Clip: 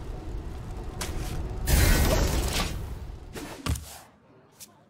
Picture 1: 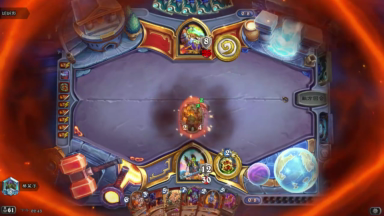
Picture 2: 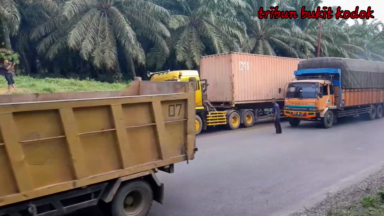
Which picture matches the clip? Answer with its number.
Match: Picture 1